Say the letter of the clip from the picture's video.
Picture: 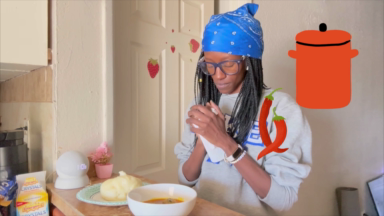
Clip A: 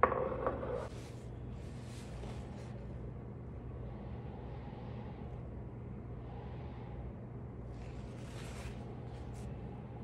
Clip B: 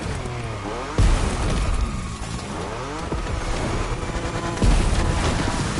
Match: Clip A